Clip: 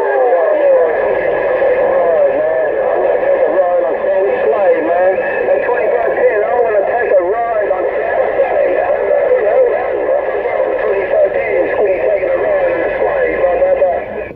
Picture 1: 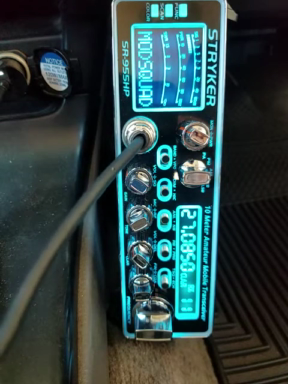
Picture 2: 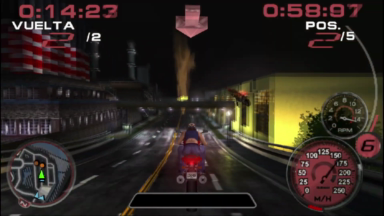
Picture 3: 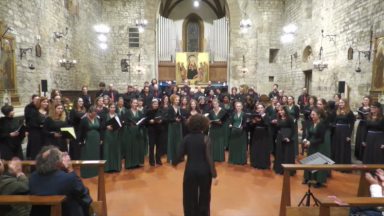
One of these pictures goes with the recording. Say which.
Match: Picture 1